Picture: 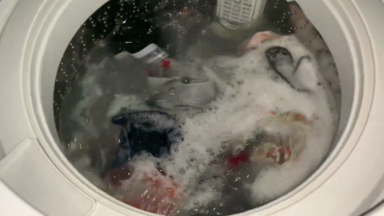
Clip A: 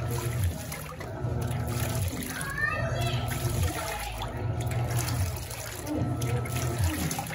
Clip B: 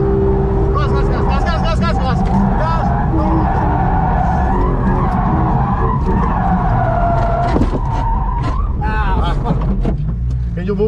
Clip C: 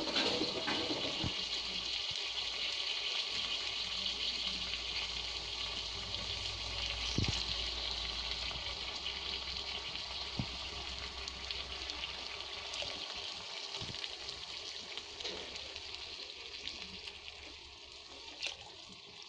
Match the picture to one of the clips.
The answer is A